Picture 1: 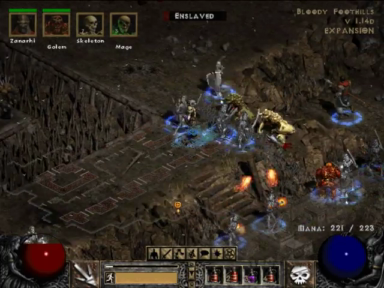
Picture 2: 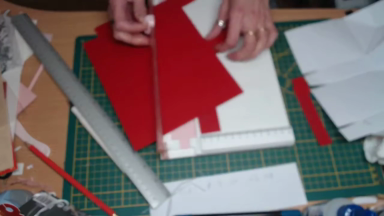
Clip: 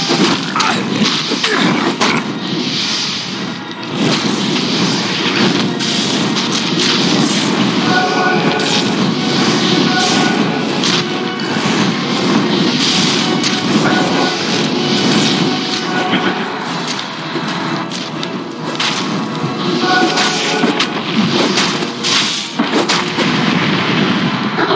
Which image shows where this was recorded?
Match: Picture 1